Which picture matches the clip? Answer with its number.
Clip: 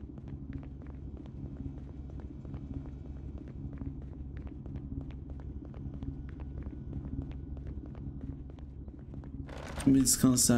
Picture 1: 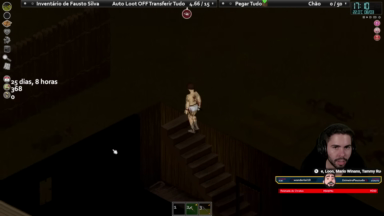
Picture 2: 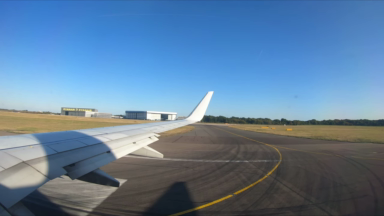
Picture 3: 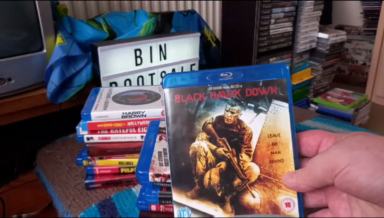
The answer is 1